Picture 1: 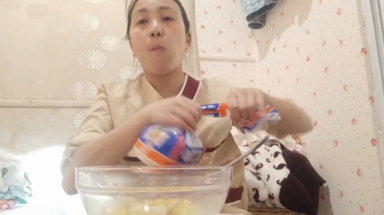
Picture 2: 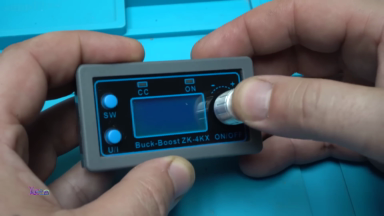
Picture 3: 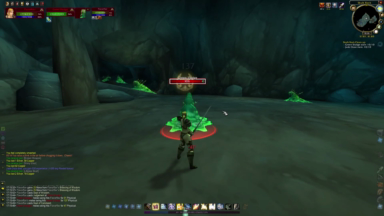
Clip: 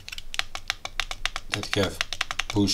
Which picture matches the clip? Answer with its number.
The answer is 2